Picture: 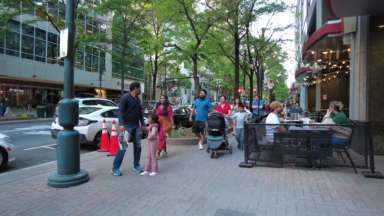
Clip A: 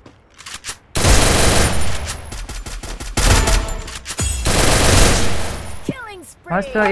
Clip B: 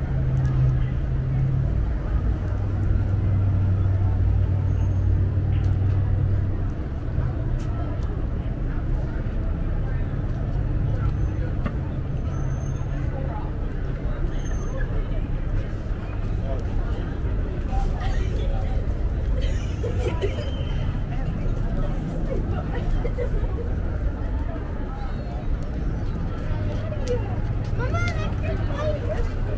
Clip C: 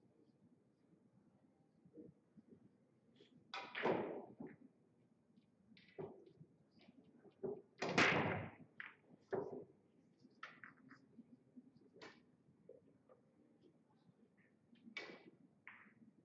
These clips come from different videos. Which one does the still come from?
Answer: B